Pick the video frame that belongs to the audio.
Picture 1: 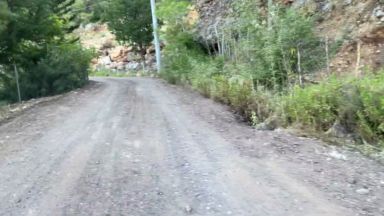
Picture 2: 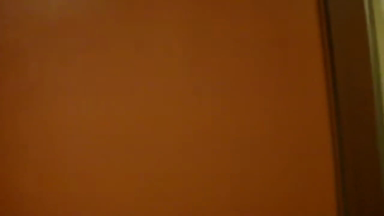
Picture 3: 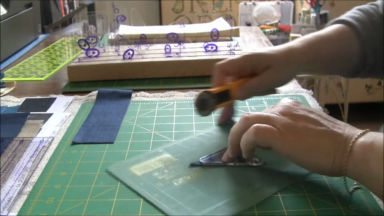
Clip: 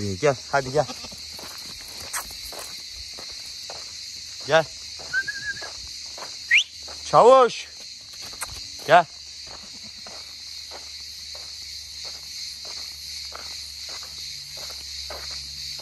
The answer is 1